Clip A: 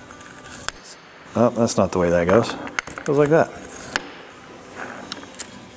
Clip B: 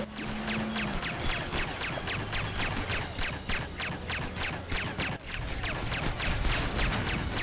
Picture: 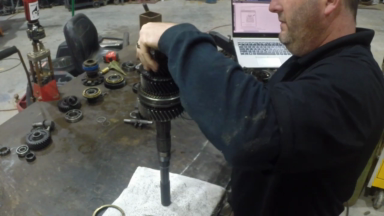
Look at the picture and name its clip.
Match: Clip A